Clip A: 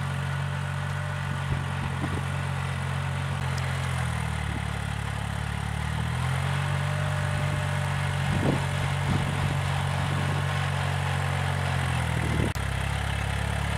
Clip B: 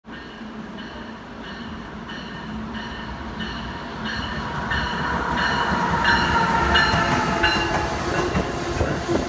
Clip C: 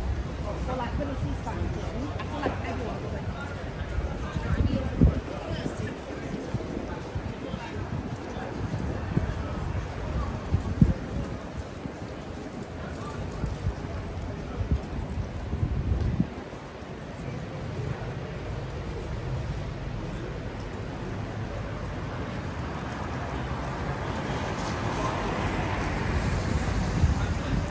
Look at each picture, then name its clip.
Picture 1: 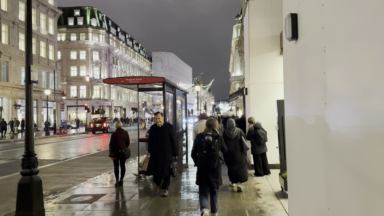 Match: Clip C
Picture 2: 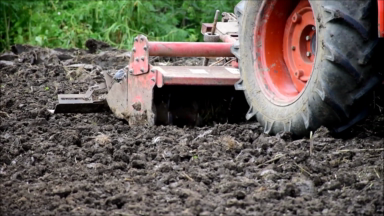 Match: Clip A